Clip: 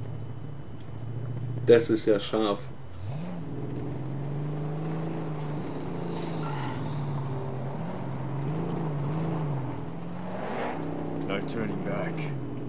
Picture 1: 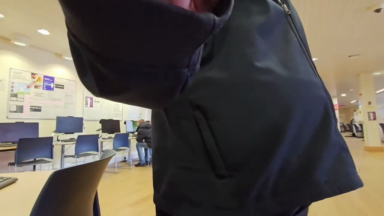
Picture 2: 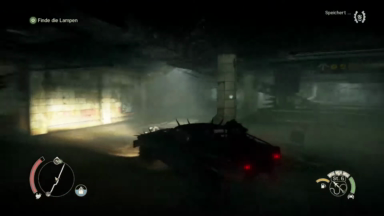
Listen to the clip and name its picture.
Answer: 2